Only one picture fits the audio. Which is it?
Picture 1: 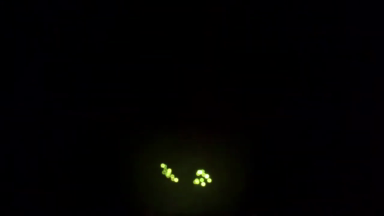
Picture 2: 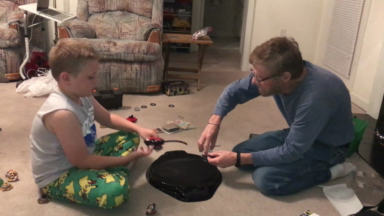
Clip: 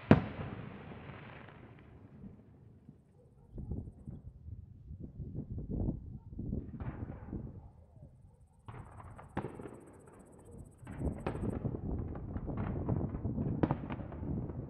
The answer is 1